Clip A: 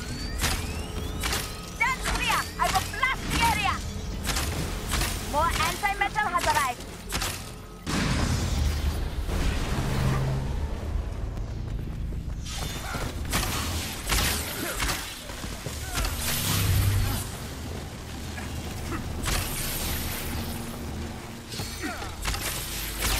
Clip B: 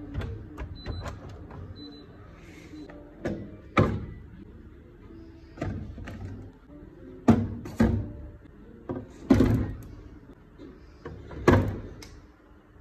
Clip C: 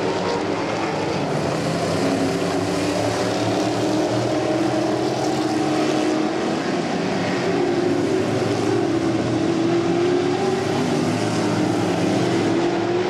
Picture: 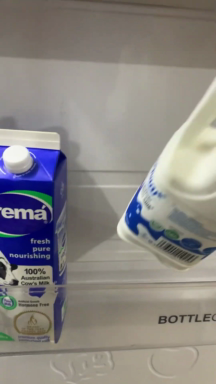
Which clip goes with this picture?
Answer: B